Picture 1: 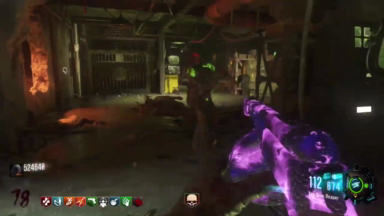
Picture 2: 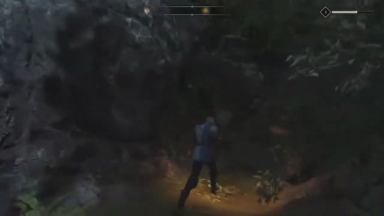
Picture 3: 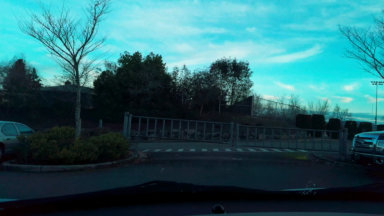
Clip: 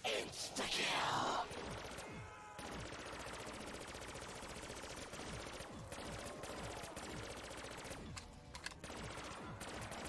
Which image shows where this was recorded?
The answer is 1